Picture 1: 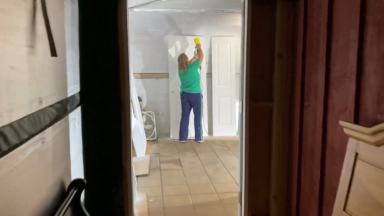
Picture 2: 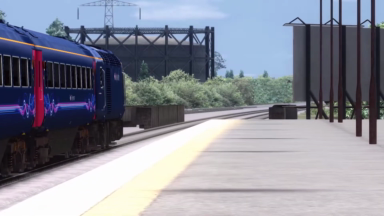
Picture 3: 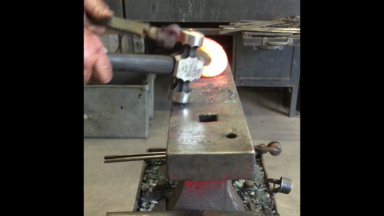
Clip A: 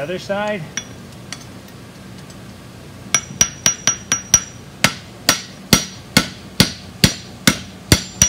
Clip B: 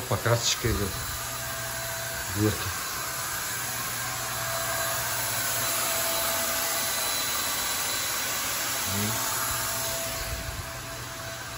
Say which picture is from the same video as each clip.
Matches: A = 3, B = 1